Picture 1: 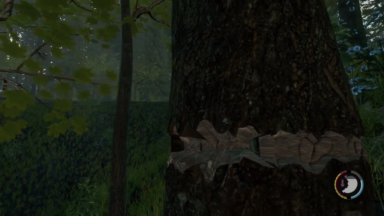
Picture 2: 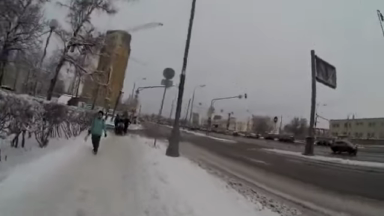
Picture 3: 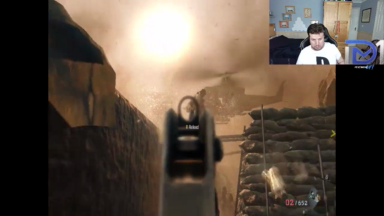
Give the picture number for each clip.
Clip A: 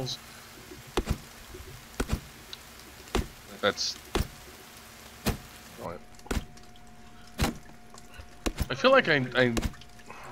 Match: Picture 1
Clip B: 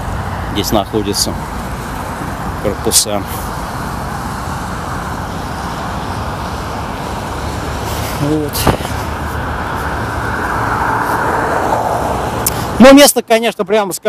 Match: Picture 2